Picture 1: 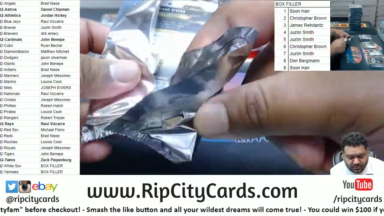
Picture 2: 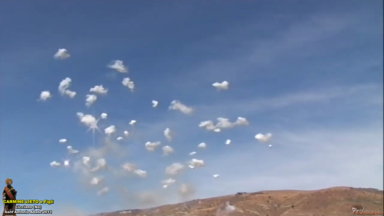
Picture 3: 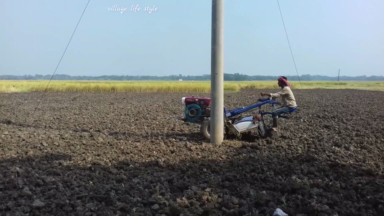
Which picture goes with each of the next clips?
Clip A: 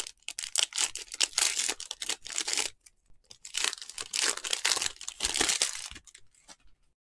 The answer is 1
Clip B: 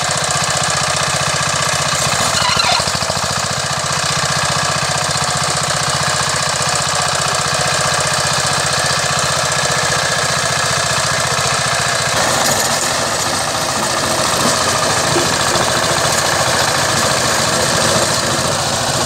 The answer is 3